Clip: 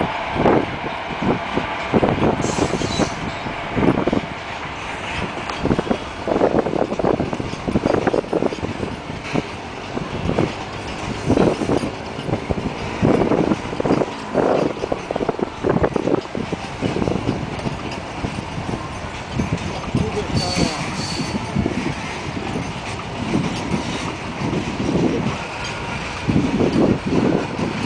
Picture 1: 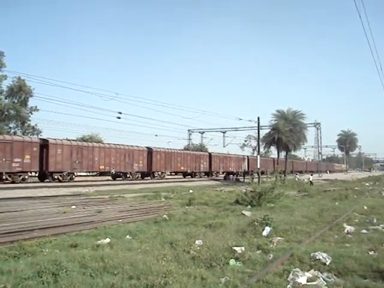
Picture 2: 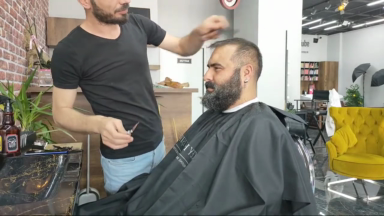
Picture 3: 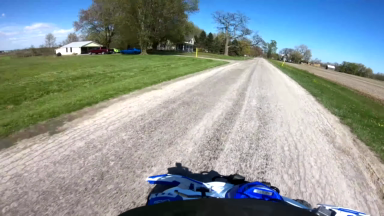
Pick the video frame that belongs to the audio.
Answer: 1